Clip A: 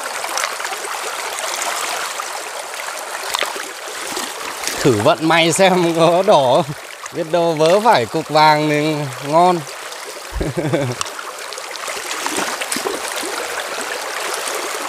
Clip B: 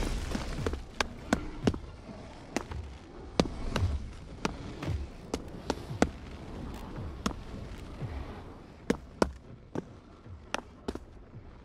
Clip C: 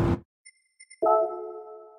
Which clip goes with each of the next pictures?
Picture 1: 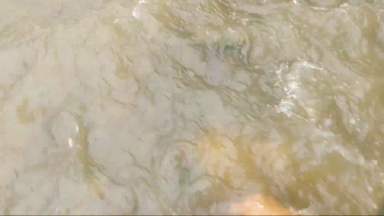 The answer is A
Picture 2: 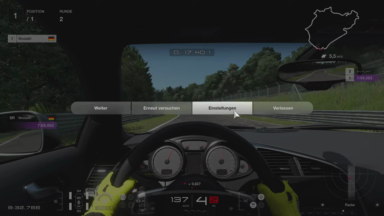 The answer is C